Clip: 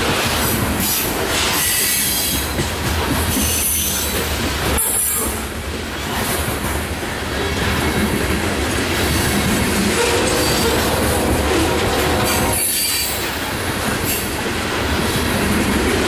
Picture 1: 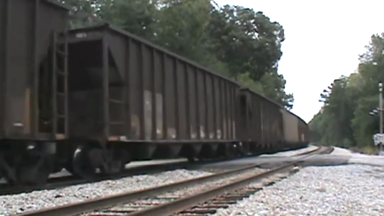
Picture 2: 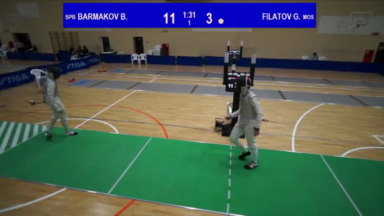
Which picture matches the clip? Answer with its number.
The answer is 1